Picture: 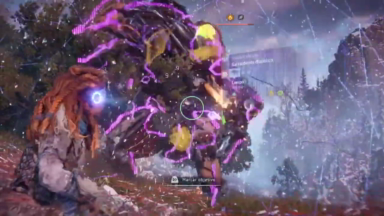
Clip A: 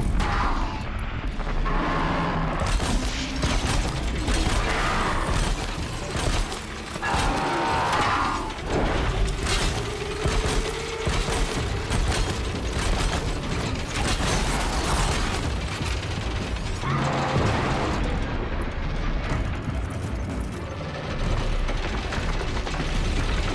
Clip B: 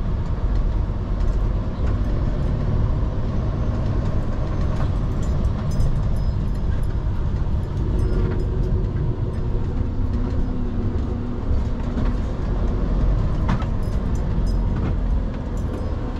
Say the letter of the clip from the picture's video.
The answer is A